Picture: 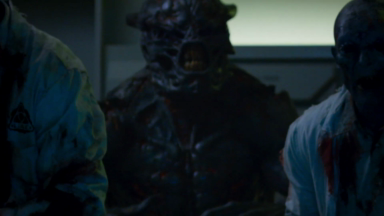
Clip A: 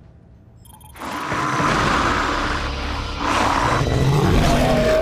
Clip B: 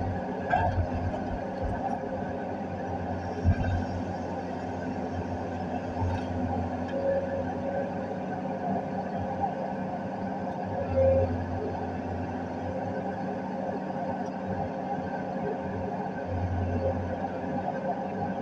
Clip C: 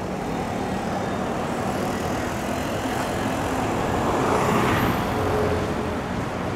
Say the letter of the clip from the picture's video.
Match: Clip A